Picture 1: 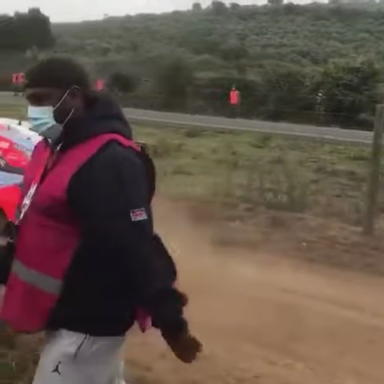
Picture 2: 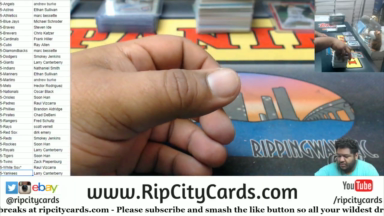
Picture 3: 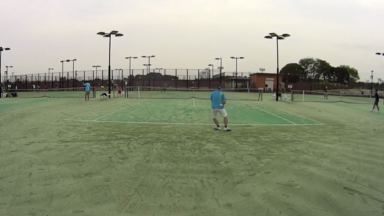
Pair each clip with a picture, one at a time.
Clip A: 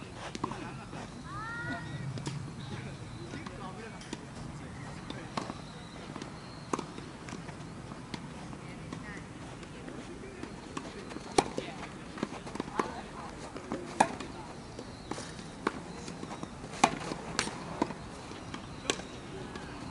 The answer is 3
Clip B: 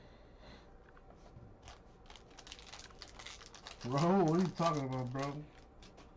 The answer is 2